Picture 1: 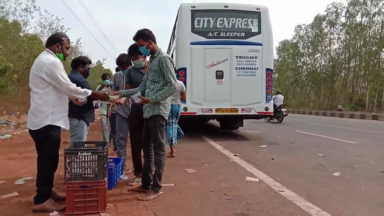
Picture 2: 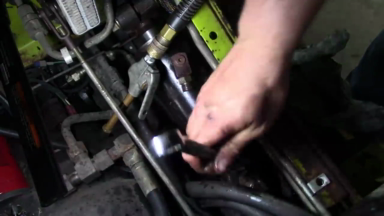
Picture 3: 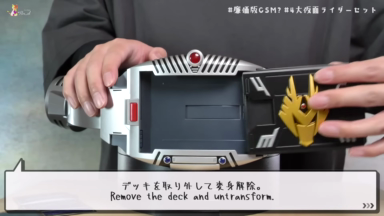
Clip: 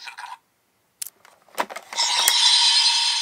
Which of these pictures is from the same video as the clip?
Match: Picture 3